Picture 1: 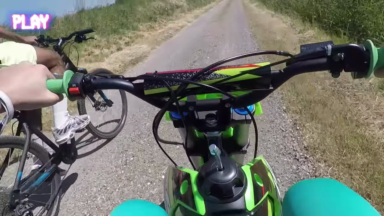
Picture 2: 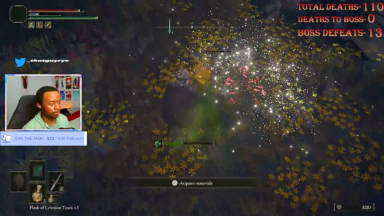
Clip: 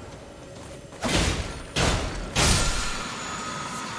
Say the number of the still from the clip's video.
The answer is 2